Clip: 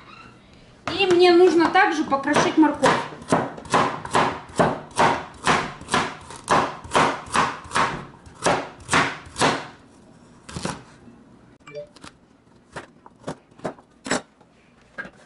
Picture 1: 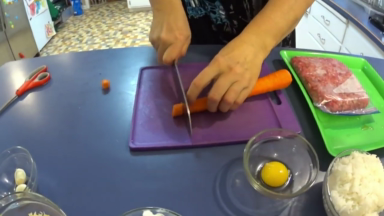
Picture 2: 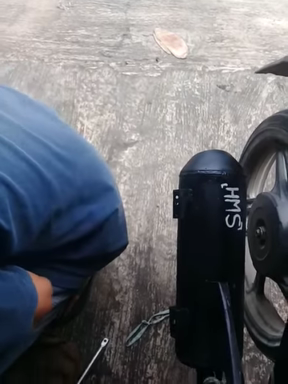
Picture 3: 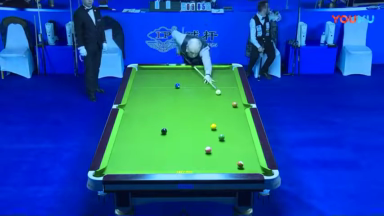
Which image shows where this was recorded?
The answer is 1